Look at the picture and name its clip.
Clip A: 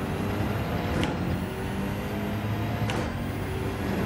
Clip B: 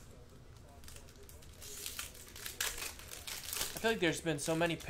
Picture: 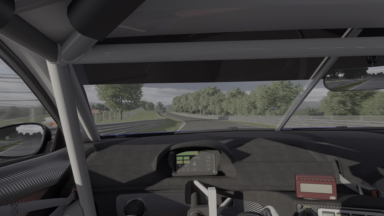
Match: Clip A